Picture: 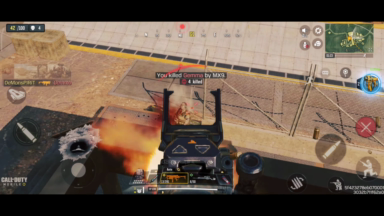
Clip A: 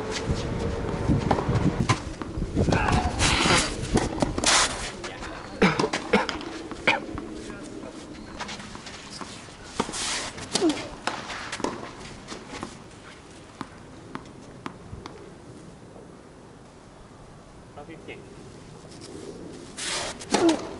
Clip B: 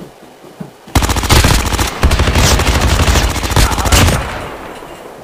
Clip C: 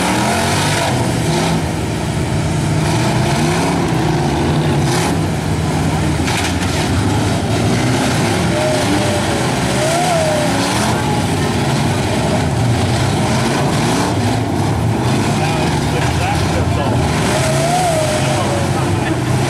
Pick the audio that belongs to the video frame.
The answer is B